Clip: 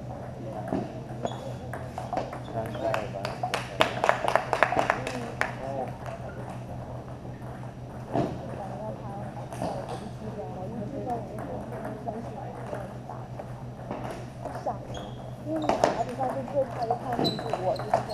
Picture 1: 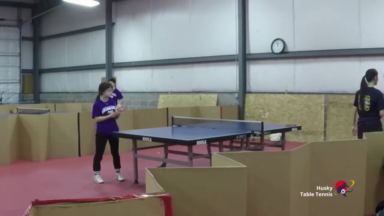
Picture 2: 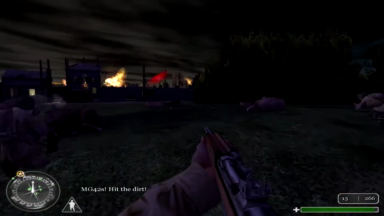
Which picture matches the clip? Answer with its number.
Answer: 1